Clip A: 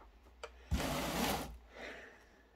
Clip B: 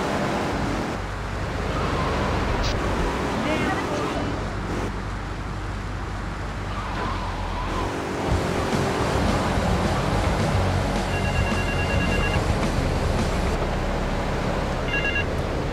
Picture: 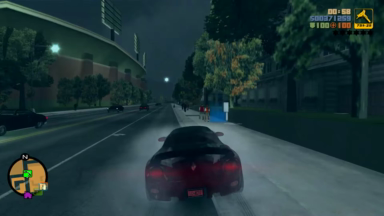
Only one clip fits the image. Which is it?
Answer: B